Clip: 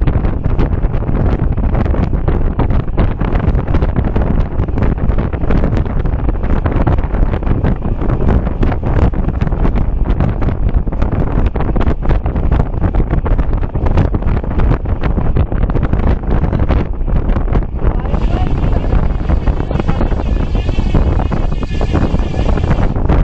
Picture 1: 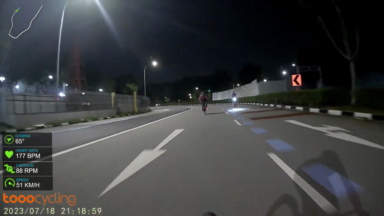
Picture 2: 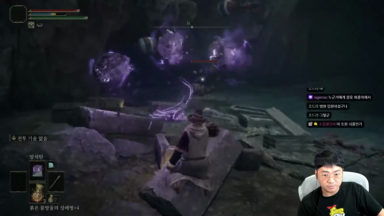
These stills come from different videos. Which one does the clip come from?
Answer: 1